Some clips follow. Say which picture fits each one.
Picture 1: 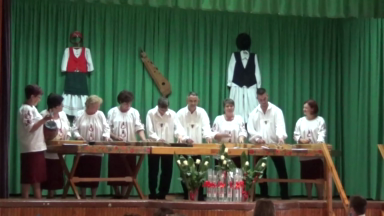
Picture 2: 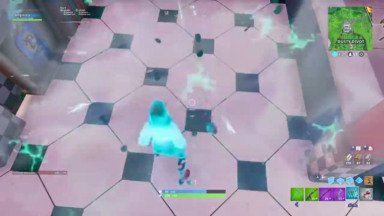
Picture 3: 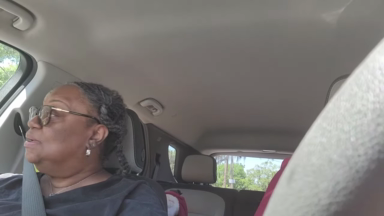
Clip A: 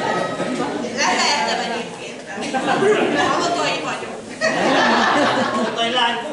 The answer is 1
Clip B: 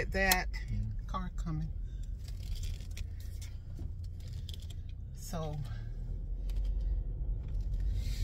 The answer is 3